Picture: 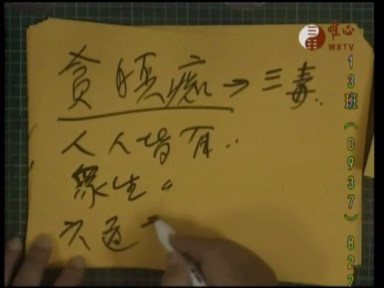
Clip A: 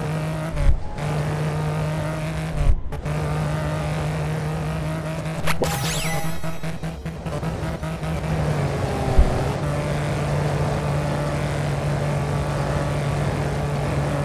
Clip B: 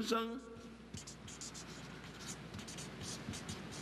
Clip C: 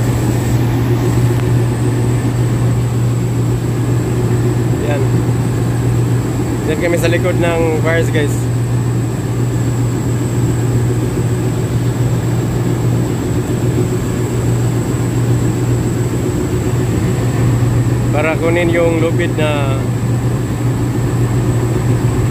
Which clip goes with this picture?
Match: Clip B